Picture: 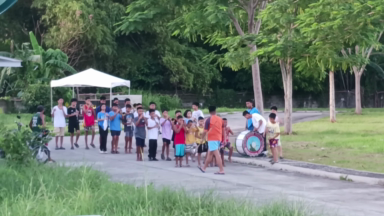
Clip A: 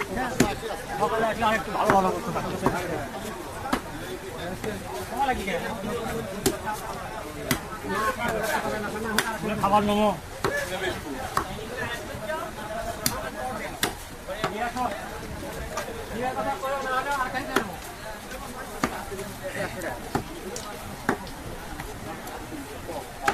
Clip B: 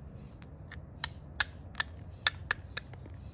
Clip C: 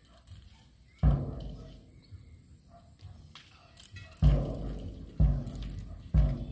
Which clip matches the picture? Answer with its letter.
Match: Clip C